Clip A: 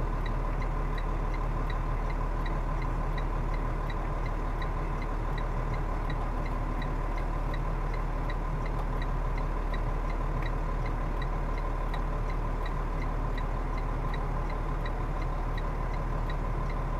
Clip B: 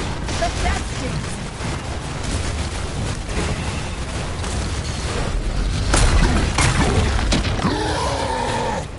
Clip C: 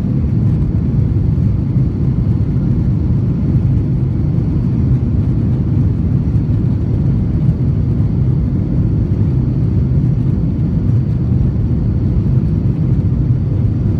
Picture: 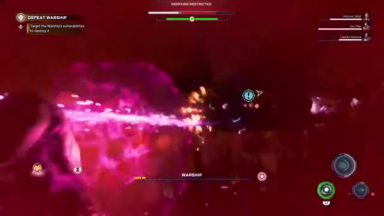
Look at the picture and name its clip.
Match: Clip B